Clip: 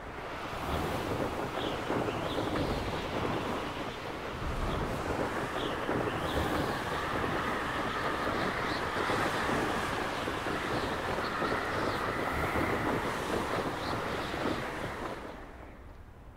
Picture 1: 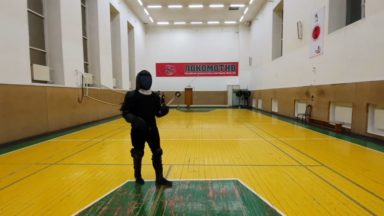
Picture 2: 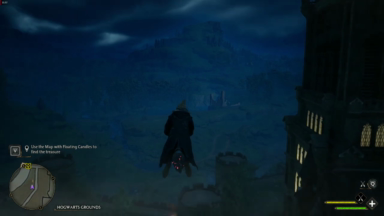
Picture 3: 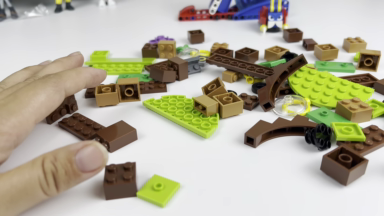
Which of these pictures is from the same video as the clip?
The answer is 2